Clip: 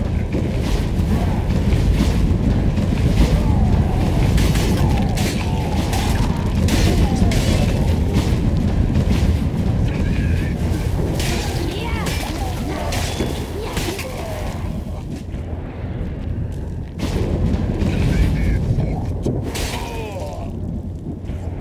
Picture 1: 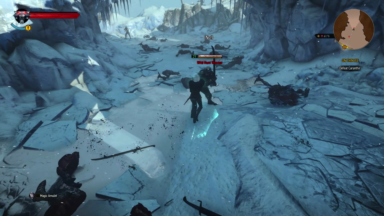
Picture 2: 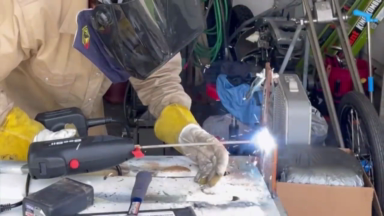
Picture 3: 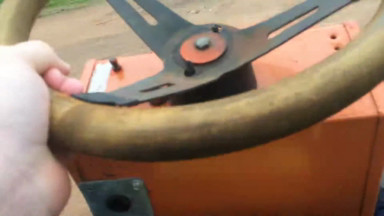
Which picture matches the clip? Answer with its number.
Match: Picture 1